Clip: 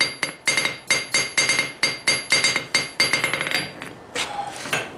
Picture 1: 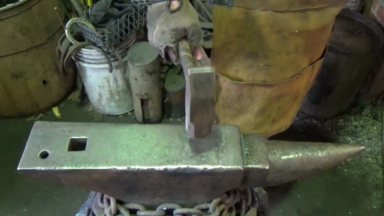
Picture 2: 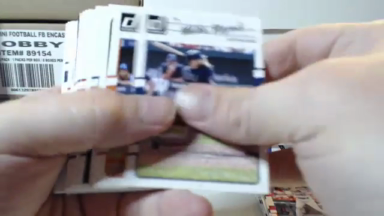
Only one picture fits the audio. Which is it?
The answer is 1